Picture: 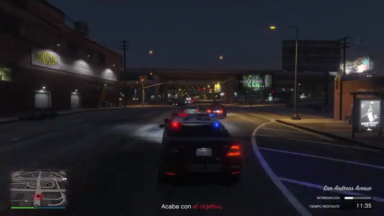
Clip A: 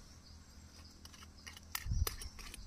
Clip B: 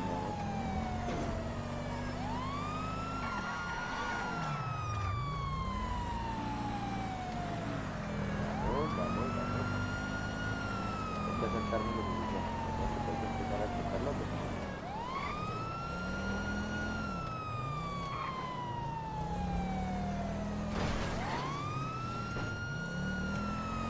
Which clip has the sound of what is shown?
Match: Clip B